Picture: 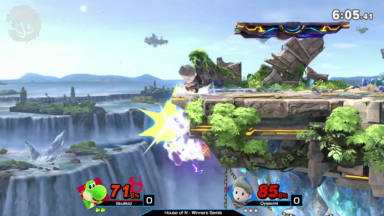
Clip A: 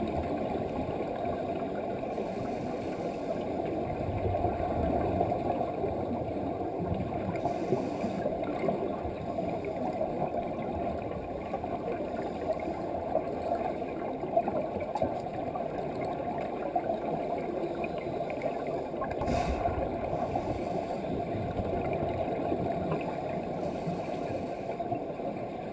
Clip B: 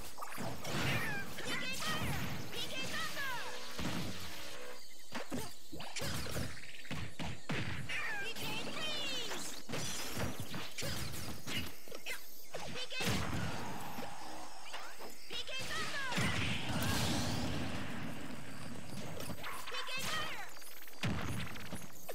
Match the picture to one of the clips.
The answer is B